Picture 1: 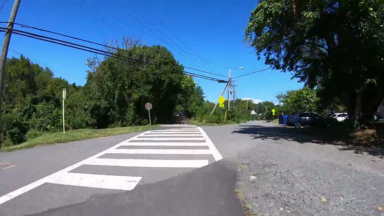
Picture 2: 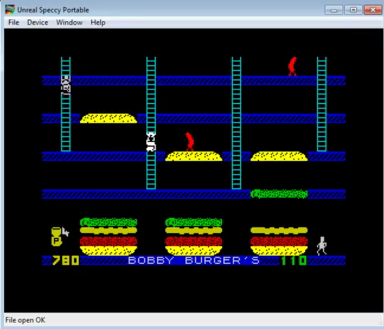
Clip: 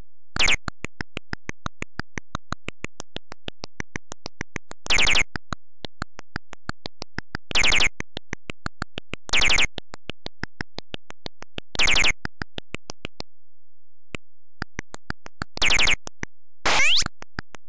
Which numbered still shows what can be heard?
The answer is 2